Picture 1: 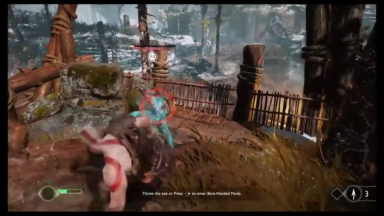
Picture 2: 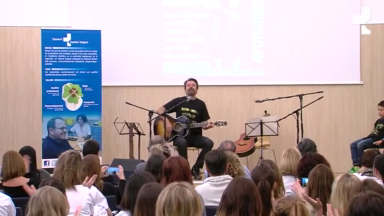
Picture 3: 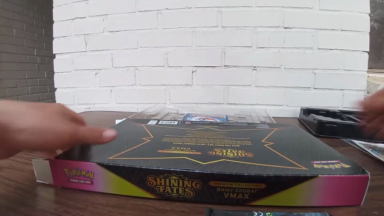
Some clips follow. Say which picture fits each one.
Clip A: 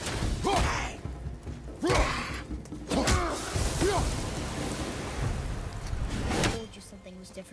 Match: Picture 1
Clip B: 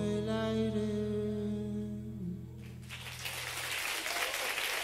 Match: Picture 2